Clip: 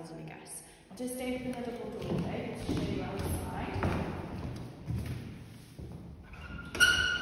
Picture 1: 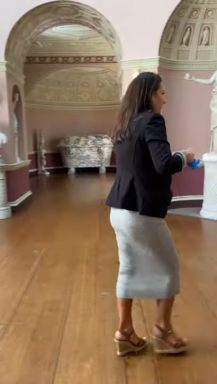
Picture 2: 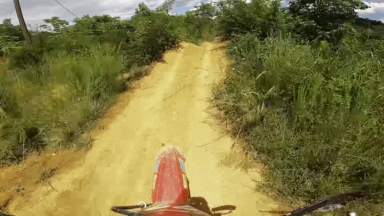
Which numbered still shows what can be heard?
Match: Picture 1